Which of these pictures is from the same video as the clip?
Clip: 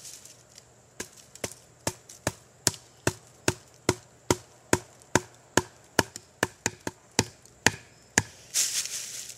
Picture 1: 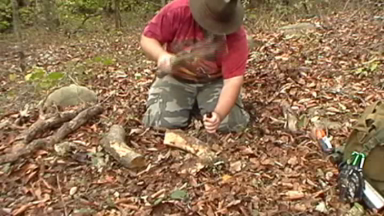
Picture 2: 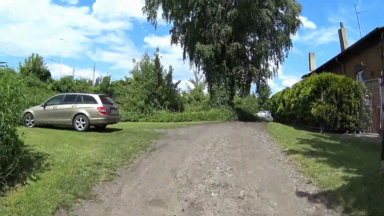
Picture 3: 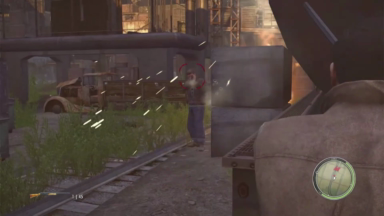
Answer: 1